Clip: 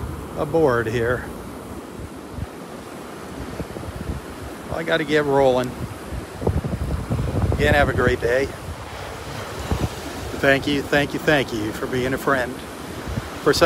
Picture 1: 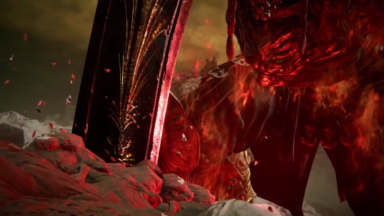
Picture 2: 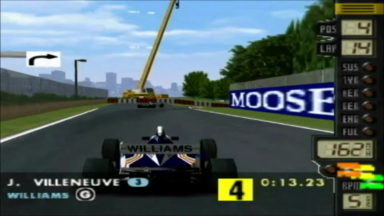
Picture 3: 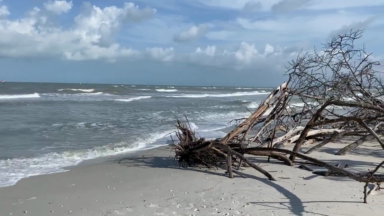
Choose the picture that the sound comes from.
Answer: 3